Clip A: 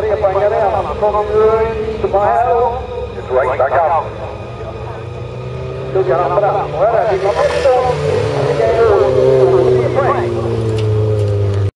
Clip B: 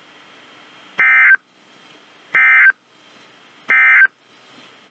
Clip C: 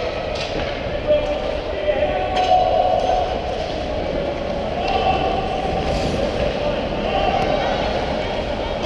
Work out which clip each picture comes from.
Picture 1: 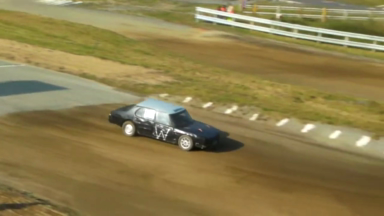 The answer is A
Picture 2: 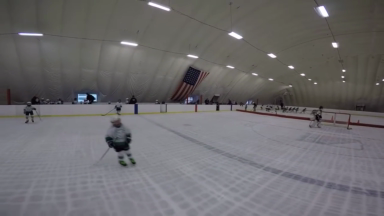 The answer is C